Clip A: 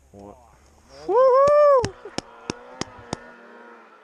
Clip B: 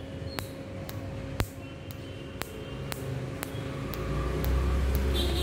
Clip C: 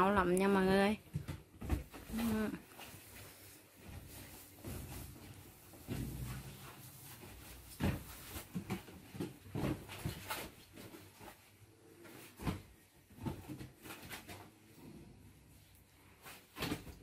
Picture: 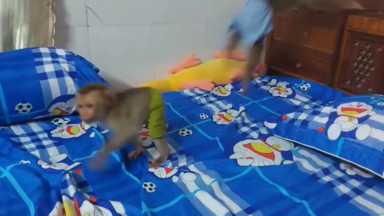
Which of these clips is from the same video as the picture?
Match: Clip C